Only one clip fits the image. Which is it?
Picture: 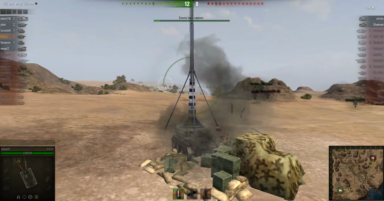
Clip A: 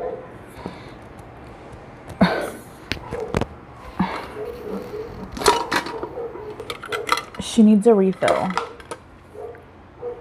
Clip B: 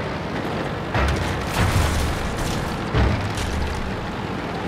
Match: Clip B